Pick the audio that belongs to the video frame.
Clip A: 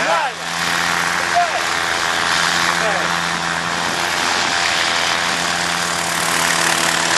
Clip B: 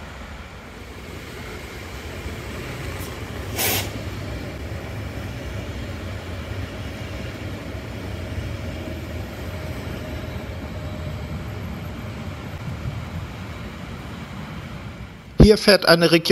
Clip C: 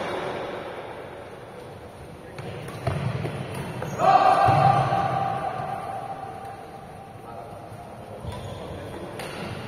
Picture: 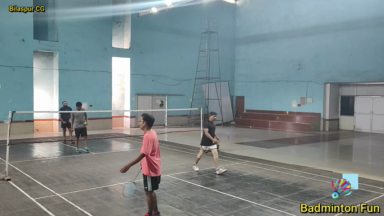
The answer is C